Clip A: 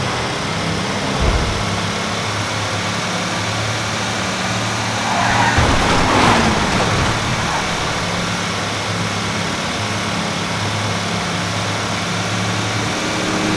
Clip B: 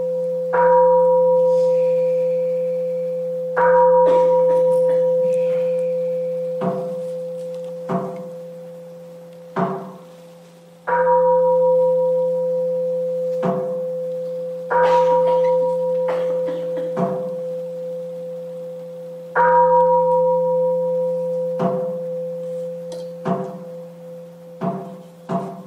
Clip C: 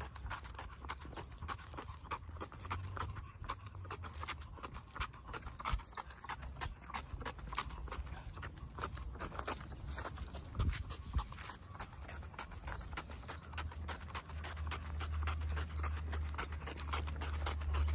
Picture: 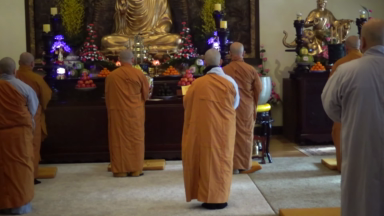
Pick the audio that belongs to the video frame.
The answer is B